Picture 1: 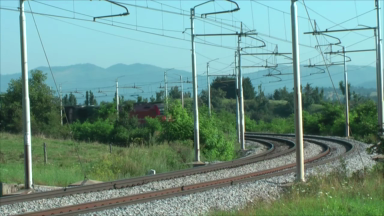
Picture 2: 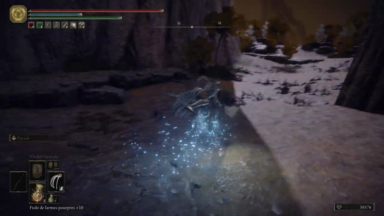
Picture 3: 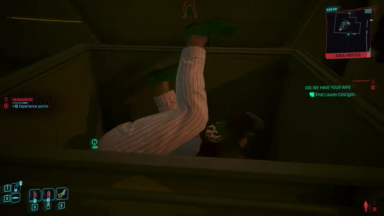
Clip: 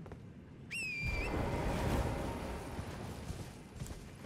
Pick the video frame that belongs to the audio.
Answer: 2